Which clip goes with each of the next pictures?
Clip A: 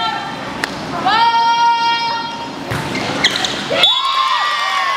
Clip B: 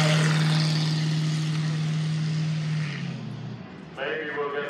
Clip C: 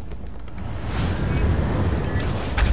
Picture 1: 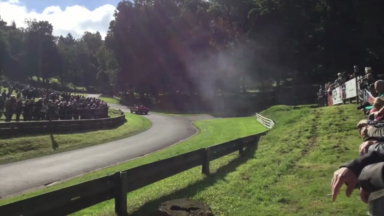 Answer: B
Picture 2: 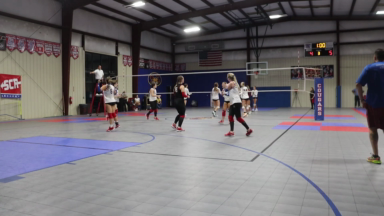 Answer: A